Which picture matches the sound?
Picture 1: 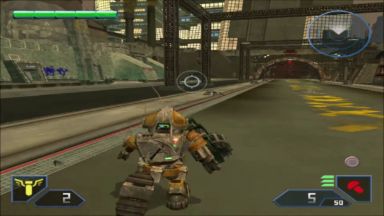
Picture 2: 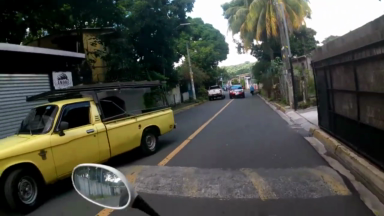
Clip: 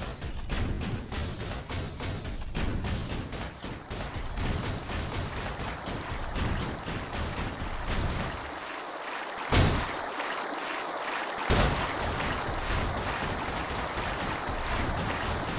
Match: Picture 1